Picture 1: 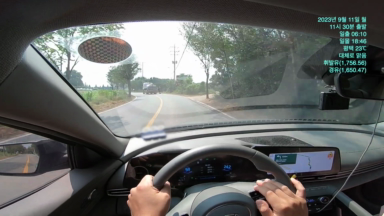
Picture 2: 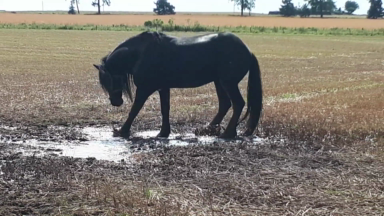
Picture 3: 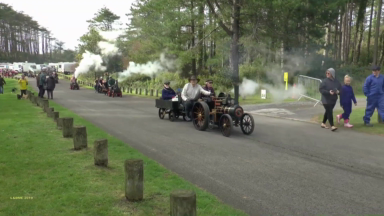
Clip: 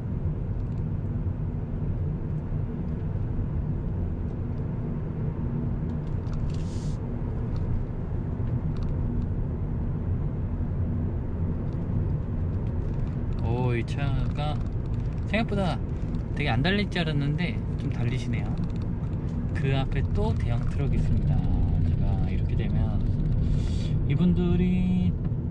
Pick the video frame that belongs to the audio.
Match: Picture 1